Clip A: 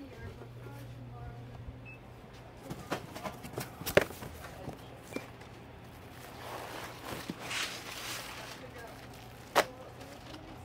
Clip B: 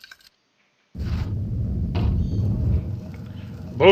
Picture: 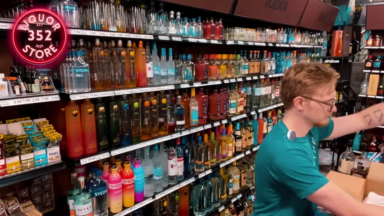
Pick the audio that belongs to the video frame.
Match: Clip A